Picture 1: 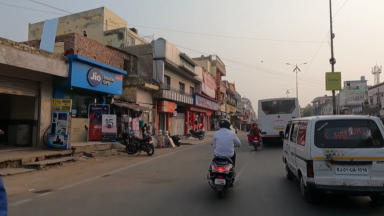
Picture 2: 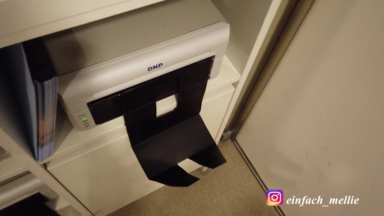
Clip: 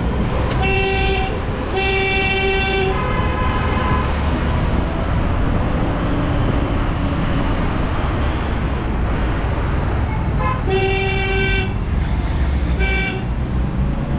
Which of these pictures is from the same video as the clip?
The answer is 1